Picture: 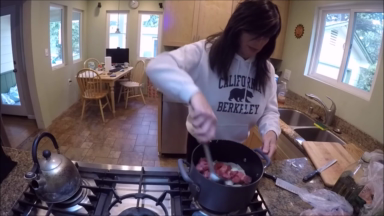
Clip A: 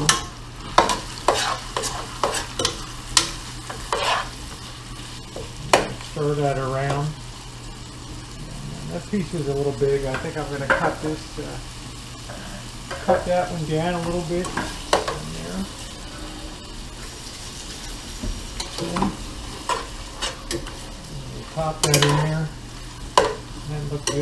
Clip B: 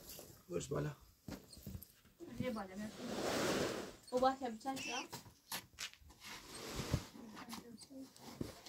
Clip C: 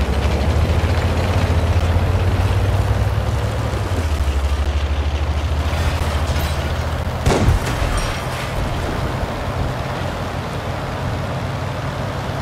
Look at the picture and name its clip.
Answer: A